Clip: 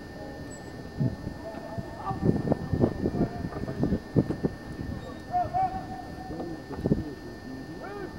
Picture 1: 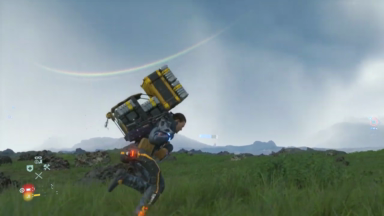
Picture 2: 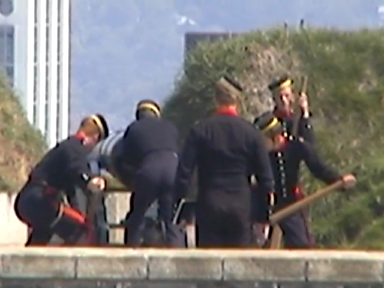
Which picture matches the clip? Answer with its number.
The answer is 2